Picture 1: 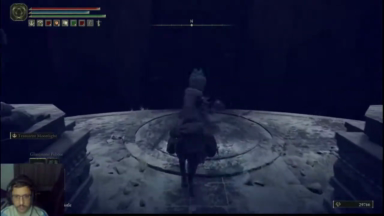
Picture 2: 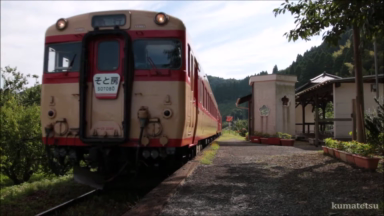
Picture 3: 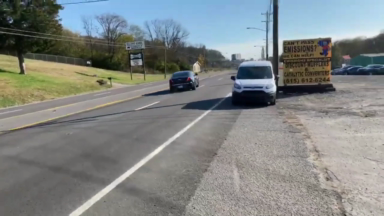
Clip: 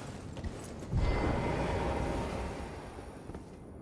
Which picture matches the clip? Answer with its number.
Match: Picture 1